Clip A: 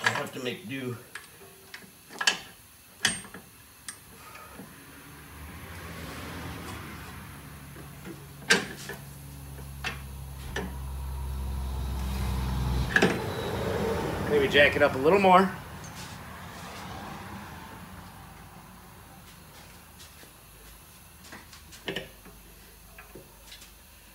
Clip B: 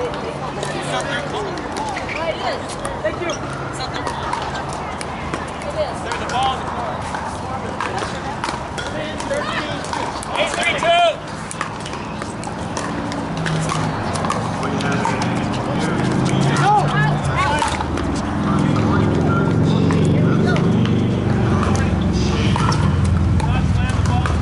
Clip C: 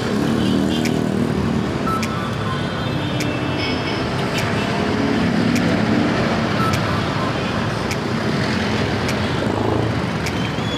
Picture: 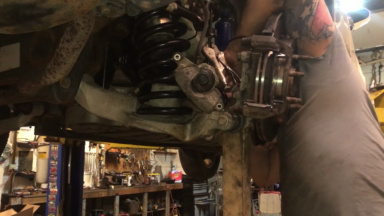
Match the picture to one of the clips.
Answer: A